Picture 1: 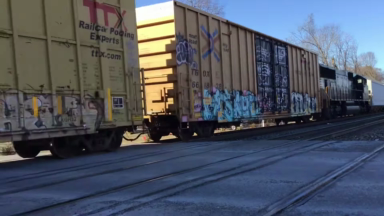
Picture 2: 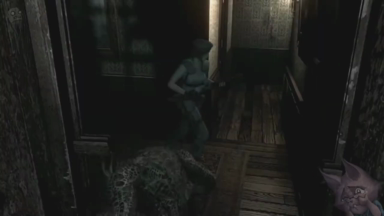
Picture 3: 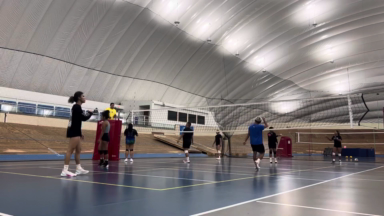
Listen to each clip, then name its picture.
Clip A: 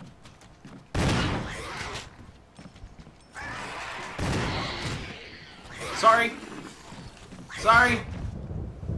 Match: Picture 2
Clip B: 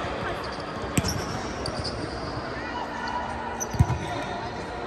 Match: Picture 3